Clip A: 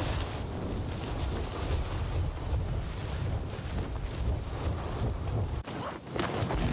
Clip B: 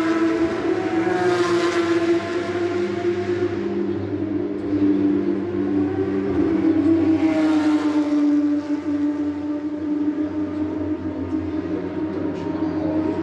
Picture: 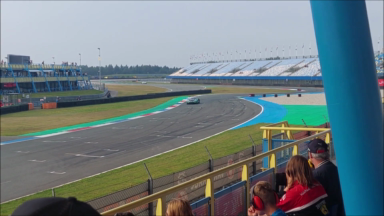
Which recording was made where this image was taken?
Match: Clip B